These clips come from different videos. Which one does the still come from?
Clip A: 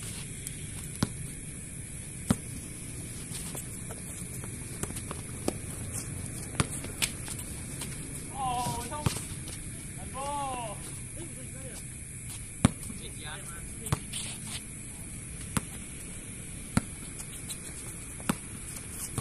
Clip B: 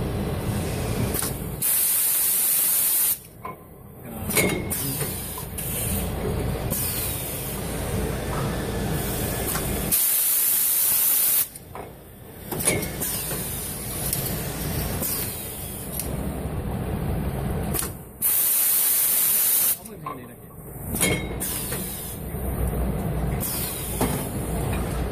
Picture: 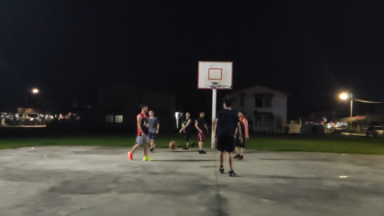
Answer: A